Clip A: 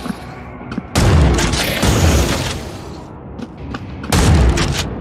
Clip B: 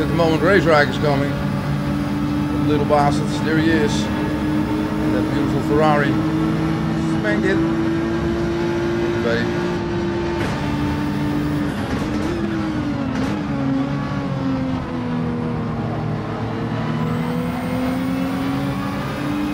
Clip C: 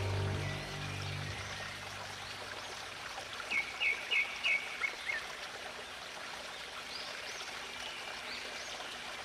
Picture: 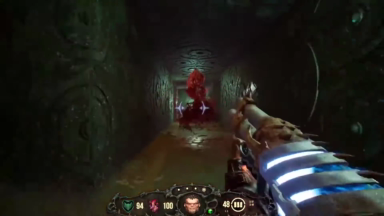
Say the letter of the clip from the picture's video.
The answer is A